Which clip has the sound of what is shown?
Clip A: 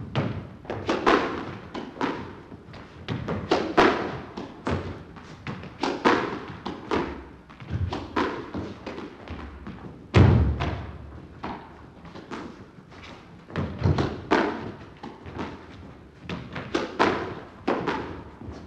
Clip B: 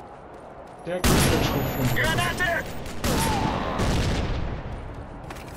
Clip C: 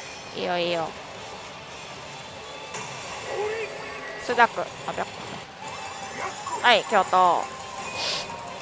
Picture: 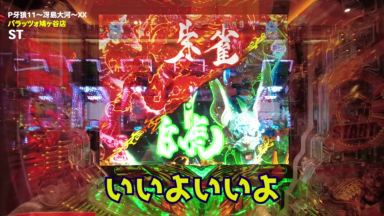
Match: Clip C